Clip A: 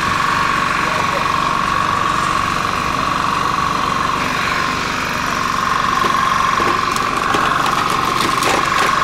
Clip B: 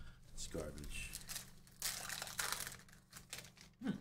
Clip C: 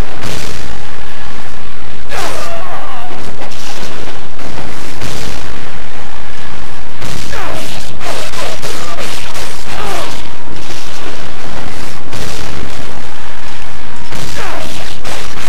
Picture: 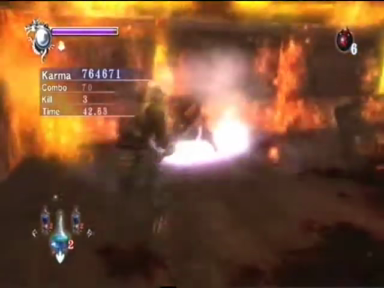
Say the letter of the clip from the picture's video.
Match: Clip C